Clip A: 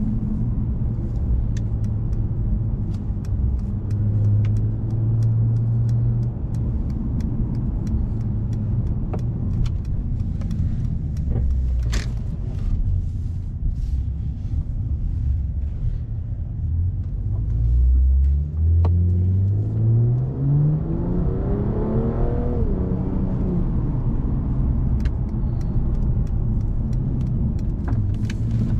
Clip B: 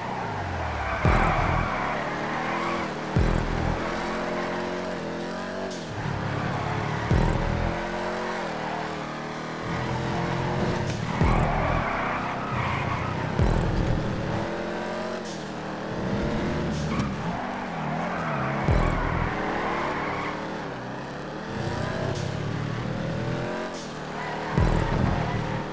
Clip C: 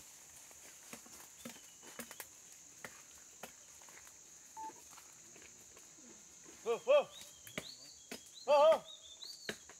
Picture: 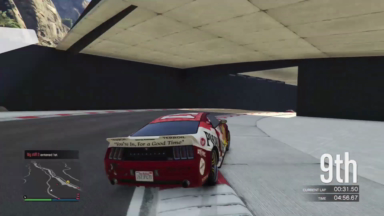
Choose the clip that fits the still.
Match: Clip B